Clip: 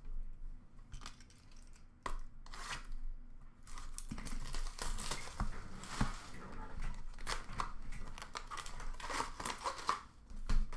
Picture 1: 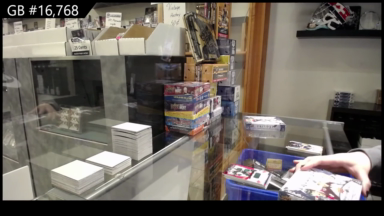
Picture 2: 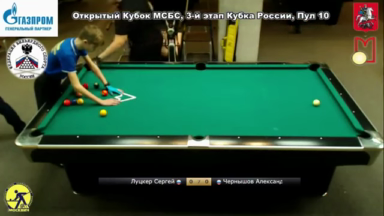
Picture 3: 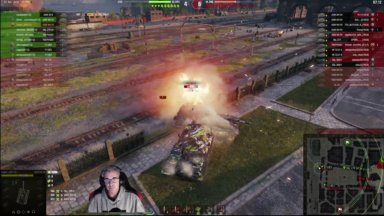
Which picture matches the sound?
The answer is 1